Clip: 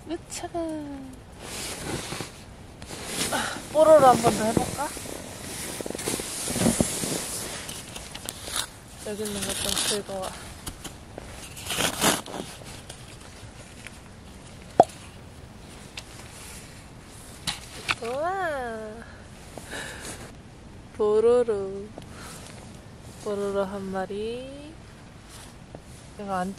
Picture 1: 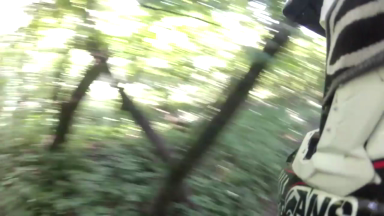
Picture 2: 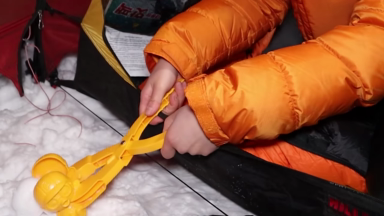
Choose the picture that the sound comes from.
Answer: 2